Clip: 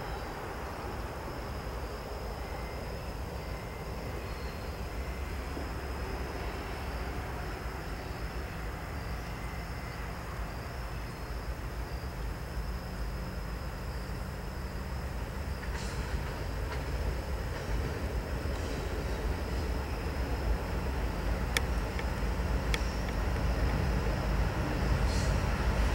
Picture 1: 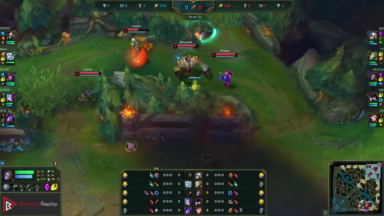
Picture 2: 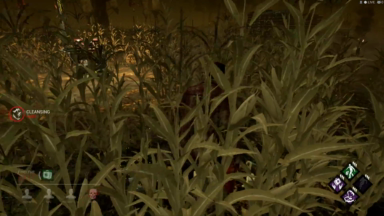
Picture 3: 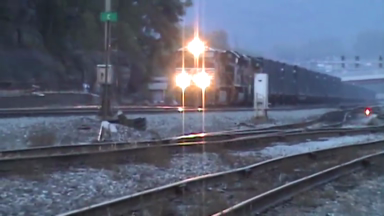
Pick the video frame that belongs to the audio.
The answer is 3